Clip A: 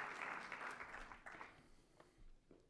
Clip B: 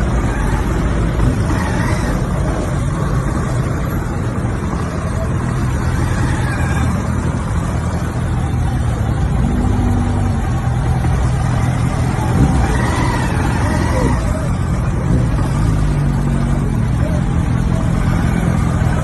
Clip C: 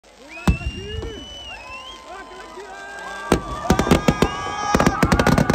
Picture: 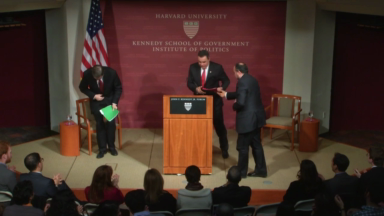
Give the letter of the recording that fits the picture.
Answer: A